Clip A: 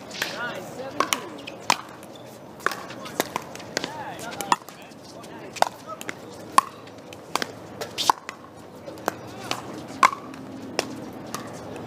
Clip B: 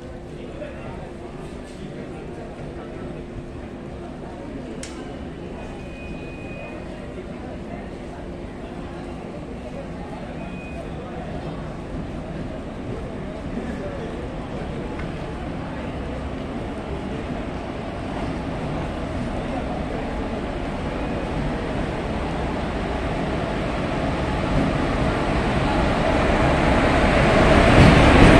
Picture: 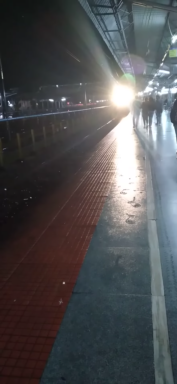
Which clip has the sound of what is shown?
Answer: B